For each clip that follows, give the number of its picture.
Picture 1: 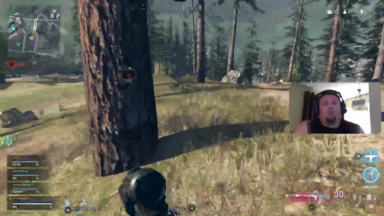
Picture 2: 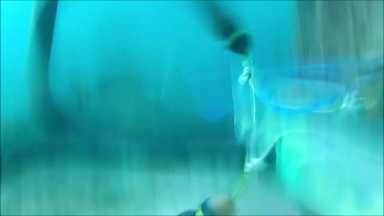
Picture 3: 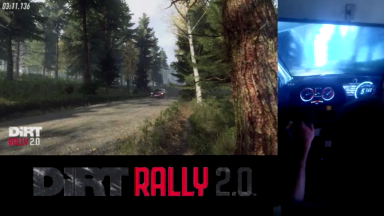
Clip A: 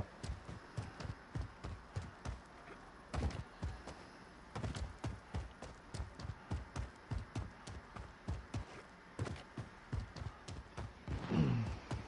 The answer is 1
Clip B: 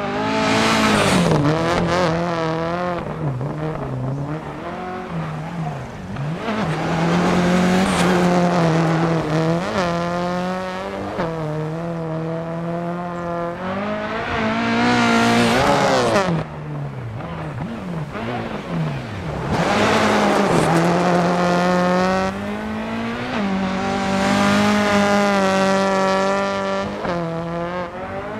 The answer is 3